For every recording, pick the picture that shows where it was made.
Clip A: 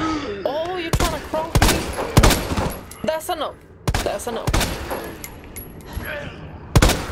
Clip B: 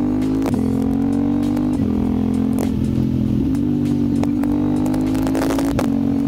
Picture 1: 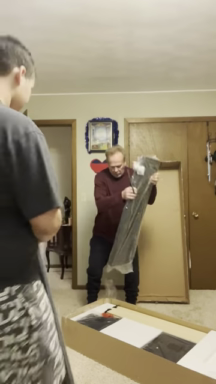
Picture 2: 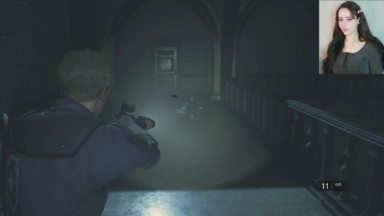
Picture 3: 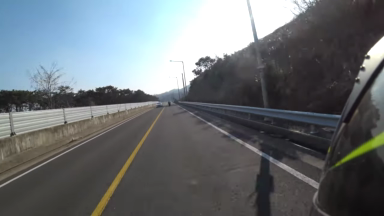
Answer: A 2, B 3